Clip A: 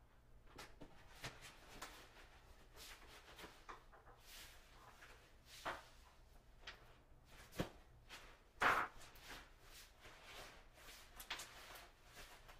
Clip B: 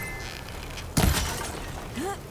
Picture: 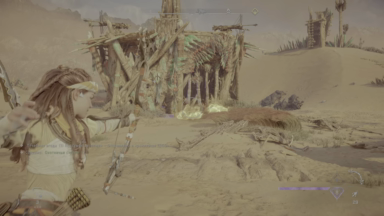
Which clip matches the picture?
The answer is B